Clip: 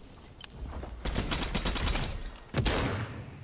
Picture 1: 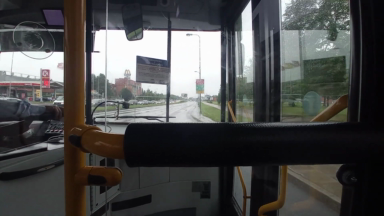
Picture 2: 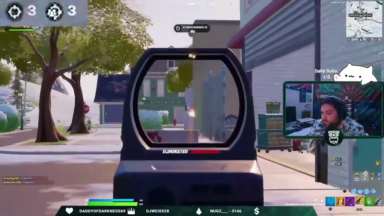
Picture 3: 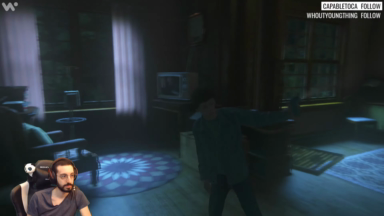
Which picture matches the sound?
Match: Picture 2